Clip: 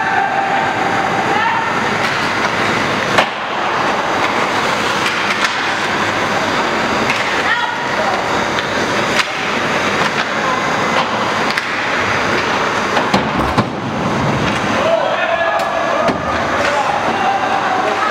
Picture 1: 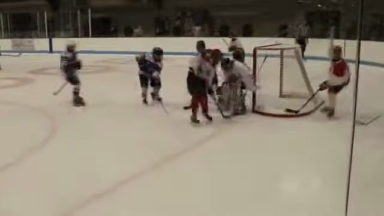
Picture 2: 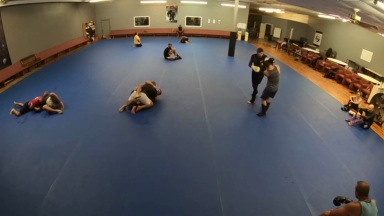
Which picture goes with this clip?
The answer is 1